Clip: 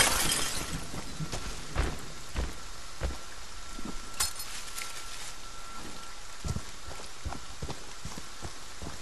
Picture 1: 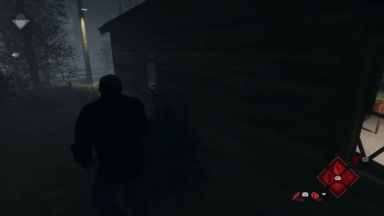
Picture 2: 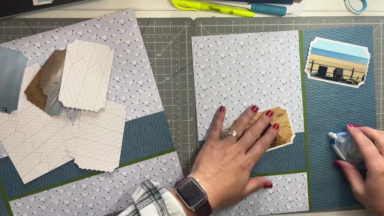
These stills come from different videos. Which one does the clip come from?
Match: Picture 1